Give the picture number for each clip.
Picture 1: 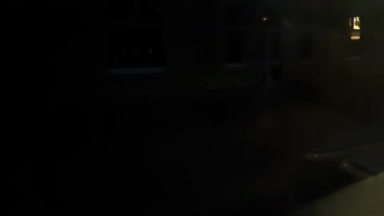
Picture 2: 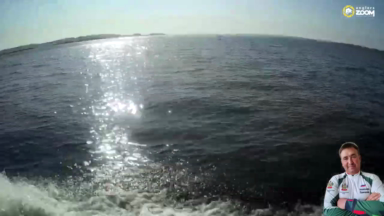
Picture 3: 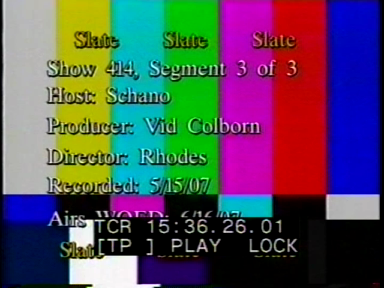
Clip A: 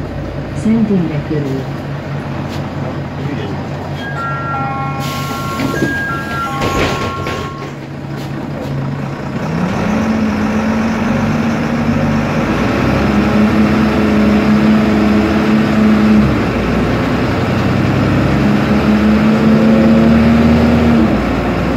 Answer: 1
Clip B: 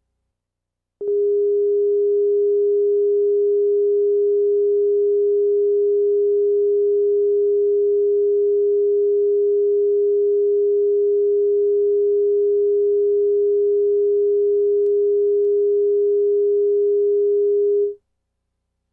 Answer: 3